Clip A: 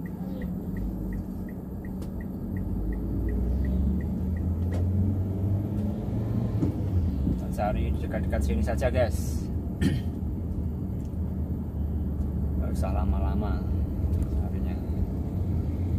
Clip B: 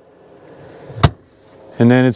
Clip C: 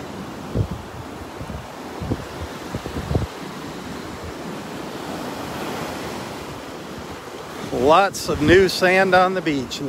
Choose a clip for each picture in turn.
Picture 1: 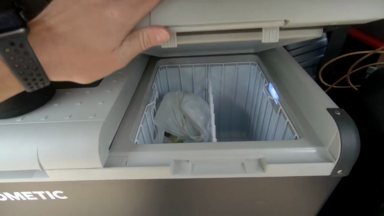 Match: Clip B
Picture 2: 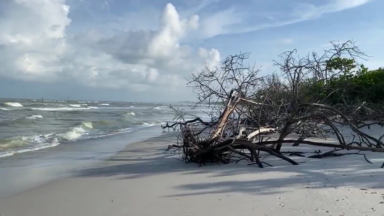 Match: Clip C